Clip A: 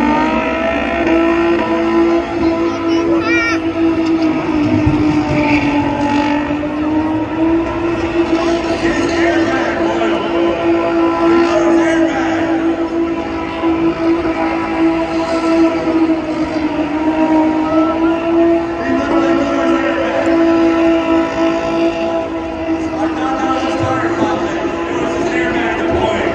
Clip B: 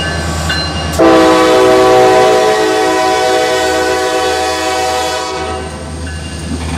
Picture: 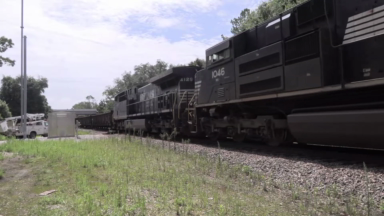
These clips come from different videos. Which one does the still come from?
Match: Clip B